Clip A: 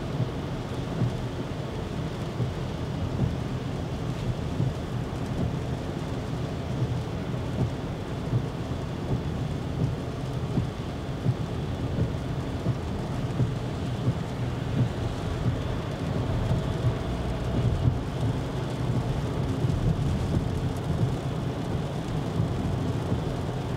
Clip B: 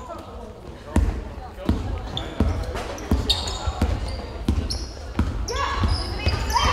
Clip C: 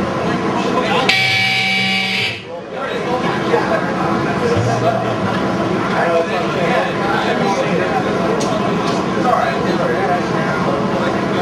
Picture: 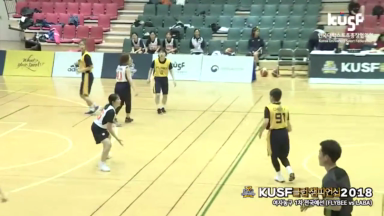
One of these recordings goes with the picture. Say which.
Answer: B